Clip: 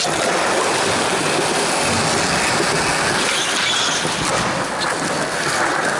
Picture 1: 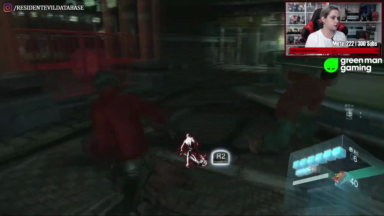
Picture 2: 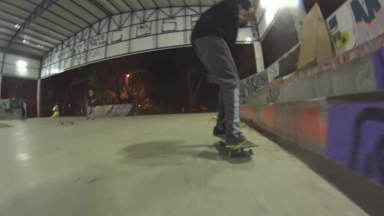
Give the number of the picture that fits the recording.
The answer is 2